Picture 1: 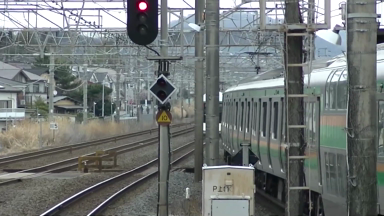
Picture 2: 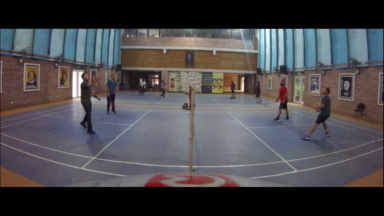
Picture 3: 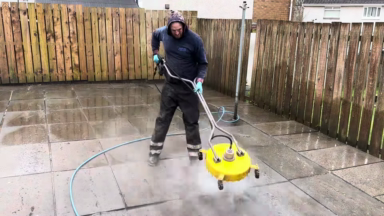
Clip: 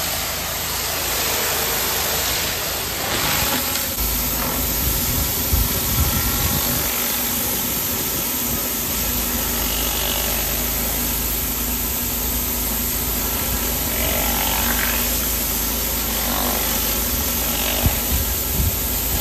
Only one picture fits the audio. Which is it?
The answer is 3